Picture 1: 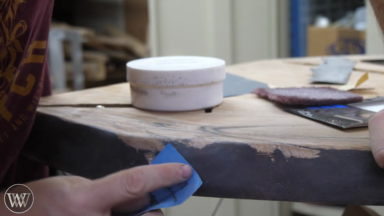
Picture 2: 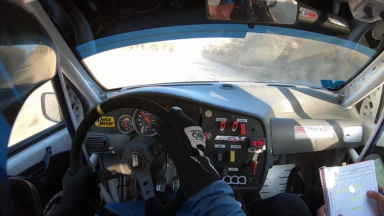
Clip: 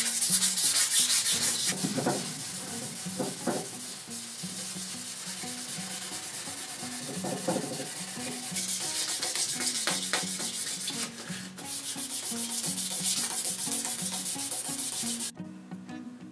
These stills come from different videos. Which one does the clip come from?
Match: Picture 1